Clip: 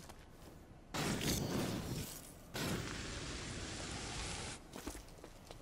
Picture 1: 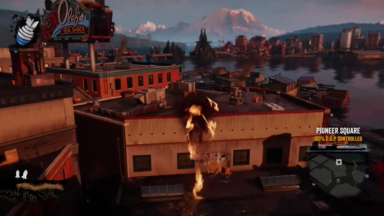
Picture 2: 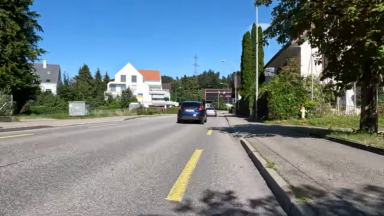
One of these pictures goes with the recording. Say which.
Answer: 1